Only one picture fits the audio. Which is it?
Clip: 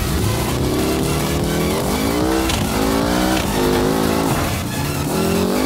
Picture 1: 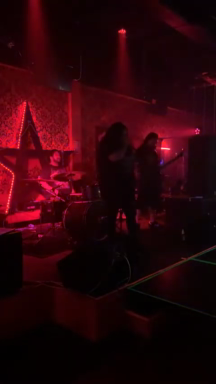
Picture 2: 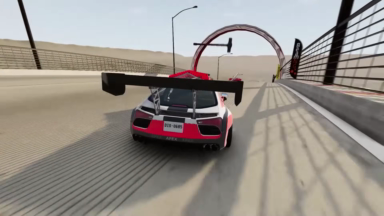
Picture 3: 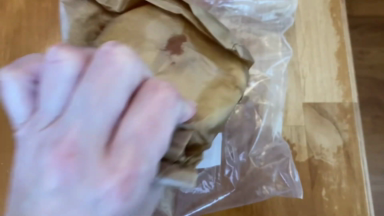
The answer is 2